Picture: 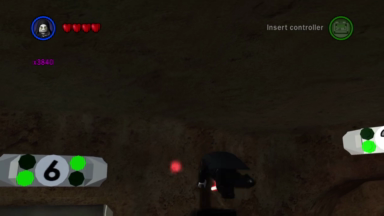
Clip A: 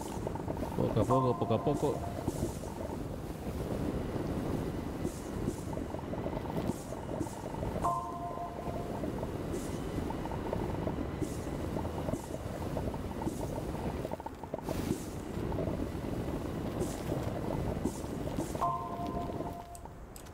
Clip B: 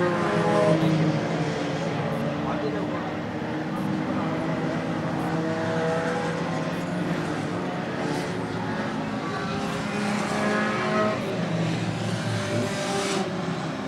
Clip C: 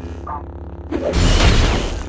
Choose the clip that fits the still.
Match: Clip C